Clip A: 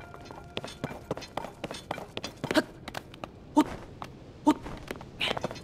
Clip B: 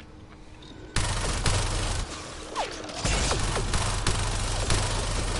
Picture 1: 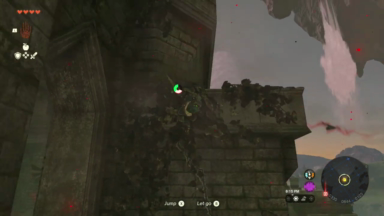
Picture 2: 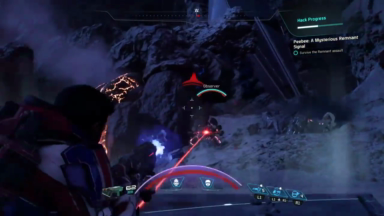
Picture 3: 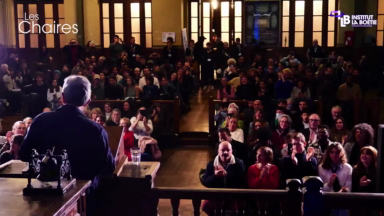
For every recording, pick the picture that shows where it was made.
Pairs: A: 1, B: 2